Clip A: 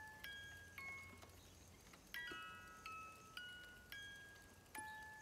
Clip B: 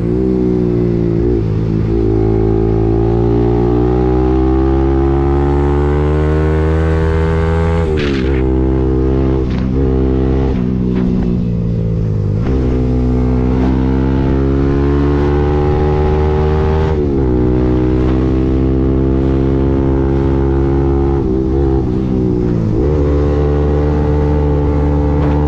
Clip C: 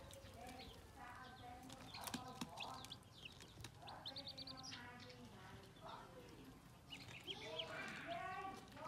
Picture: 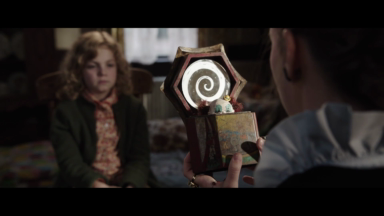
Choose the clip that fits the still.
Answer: A